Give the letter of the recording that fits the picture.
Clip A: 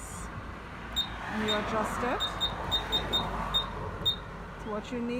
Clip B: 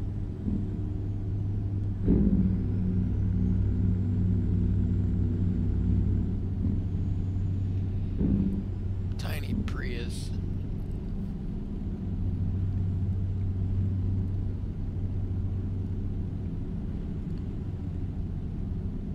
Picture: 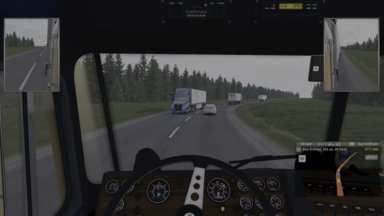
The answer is B